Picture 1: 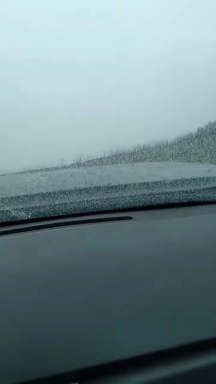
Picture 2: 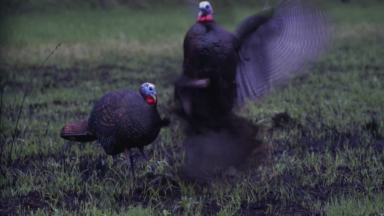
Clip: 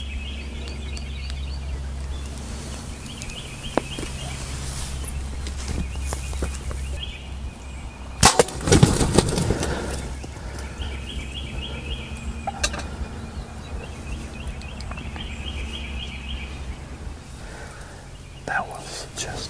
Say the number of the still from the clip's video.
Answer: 2